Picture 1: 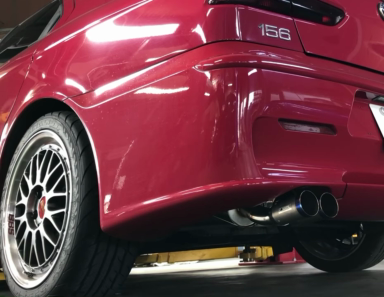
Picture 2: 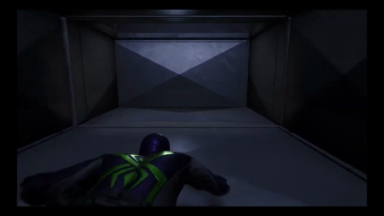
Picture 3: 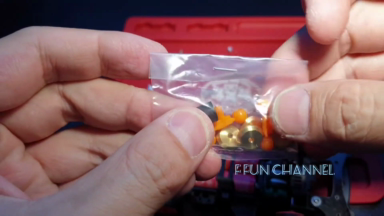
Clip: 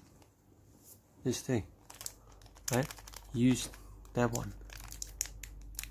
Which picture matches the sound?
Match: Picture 3